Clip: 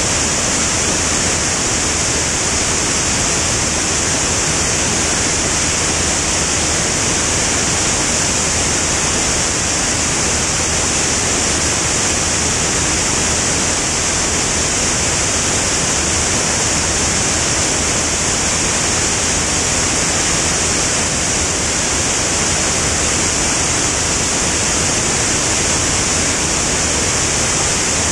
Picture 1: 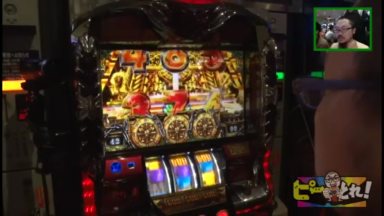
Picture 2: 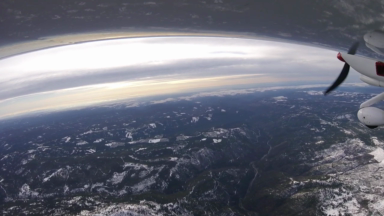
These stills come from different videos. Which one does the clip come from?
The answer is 2